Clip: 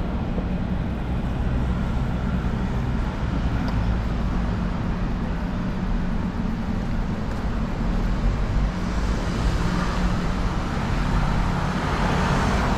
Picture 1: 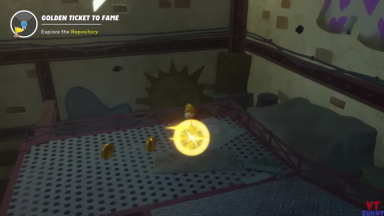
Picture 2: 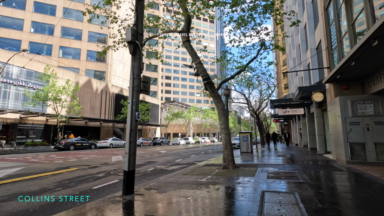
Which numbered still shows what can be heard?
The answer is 2